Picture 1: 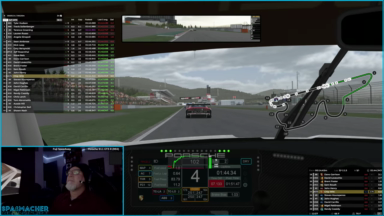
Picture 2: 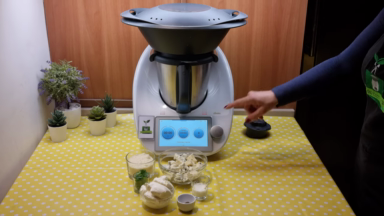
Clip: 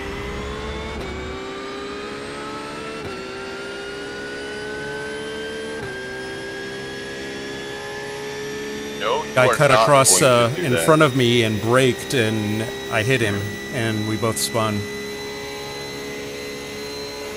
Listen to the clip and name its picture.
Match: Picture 1